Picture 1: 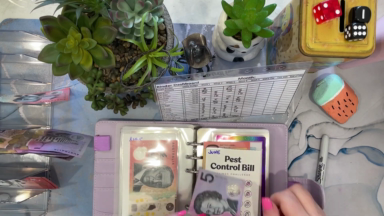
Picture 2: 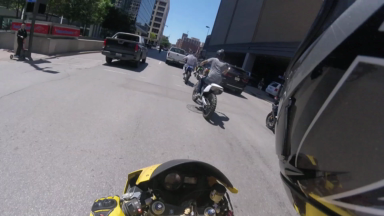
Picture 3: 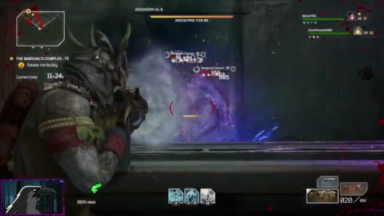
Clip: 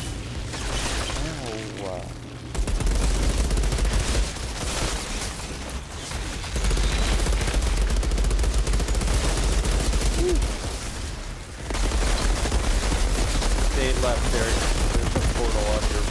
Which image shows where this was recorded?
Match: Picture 3